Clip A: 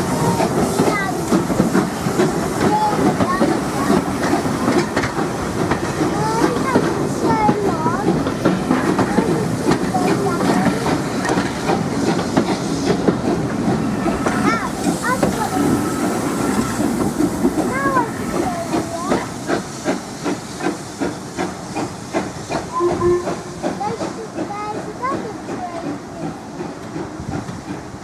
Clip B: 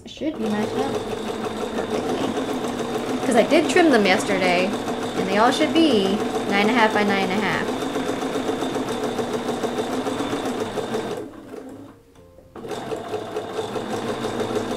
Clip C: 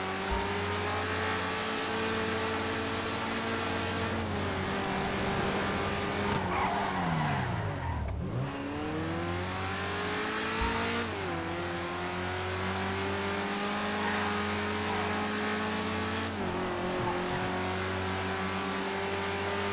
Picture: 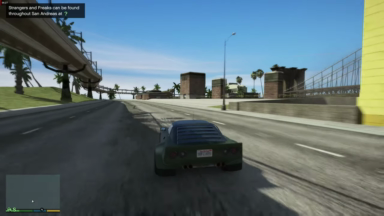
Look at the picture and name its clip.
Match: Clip C